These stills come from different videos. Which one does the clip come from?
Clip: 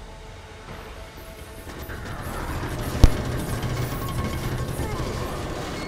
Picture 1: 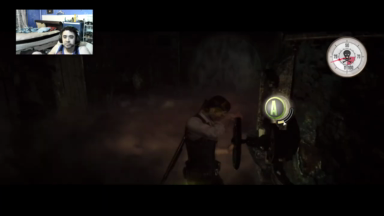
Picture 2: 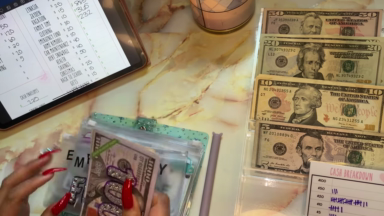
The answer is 1